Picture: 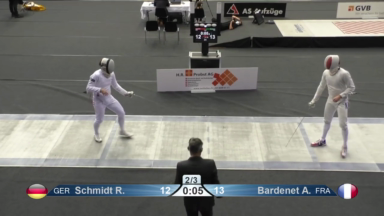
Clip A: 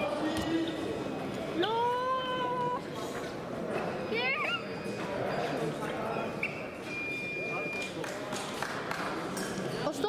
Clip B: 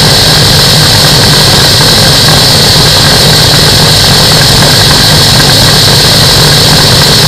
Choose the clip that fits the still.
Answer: A